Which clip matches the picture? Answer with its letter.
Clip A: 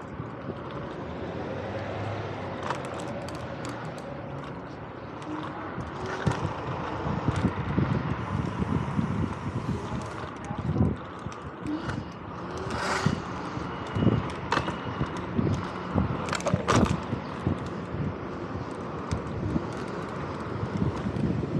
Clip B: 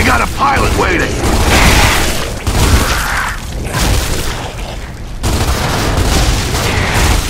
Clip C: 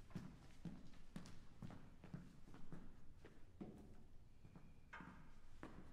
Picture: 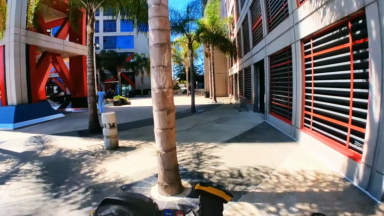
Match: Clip A